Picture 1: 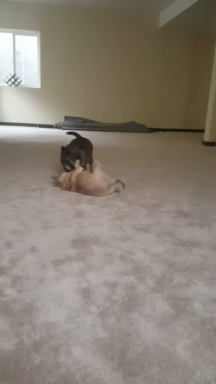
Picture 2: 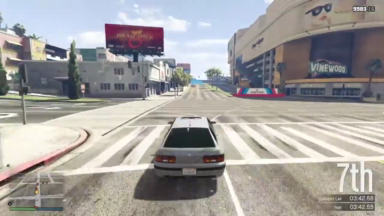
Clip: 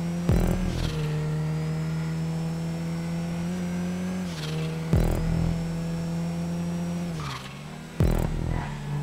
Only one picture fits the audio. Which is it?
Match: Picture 2